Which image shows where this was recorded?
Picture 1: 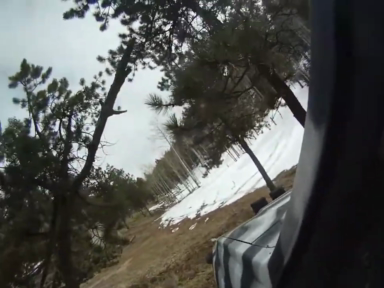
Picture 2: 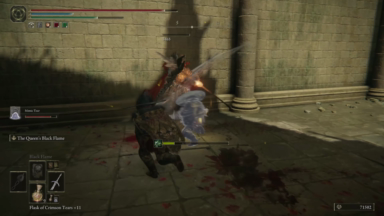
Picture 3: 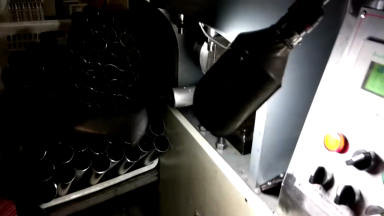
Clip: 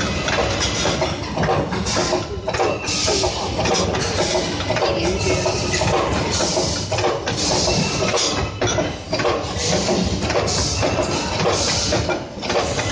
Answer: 3